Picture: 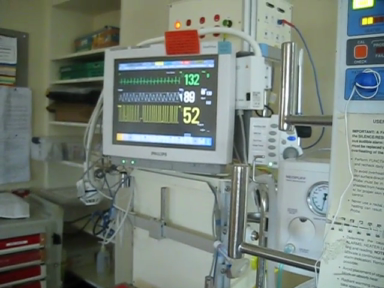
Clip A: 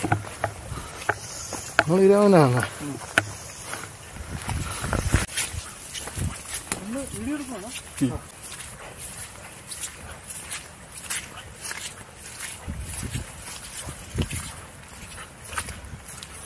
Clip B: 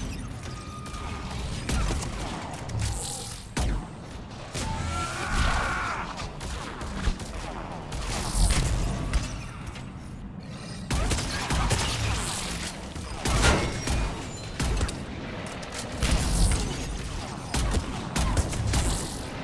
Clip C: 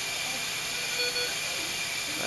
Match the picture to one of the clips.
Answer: C